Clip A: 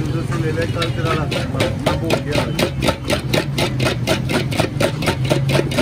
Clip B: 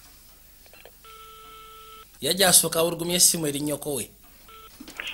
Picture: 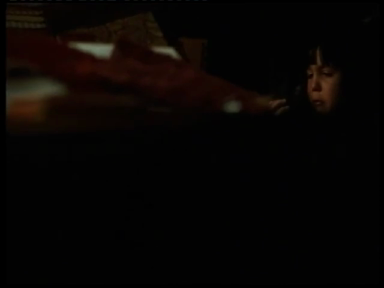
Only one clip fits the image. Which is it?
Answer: B